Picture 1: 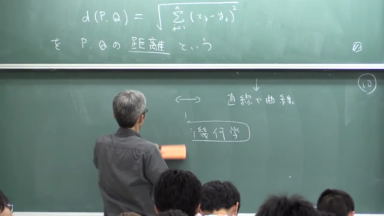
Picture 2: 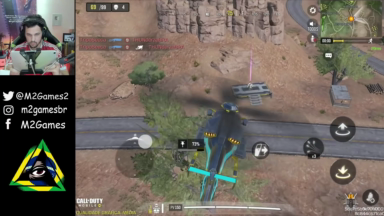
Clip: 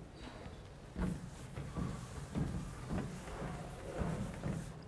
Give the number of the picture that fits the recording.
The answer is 1